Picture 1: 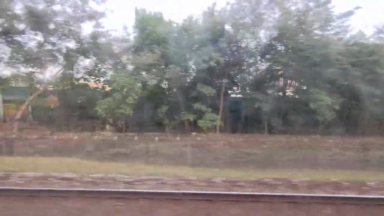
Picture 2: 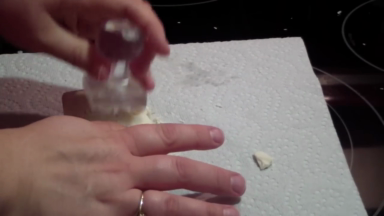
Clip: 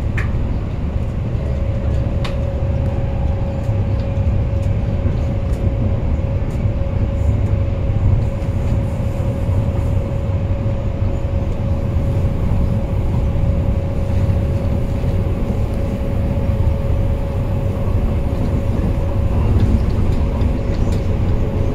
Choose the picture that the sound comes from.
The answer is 1